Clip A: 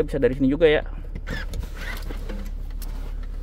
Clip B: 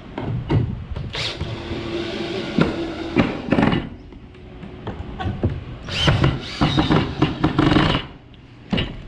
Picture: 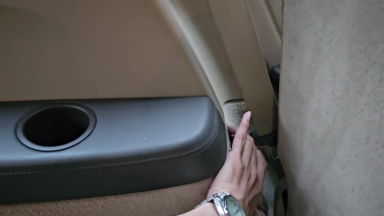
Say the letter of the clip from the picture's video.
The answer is A